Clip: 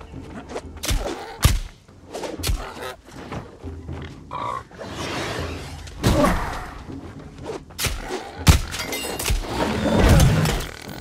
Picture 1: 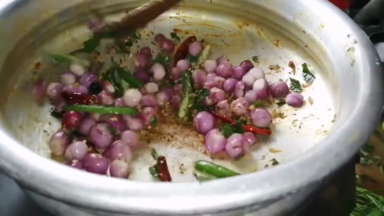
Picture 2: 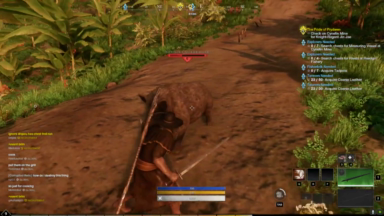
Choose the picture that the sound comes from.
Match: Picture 2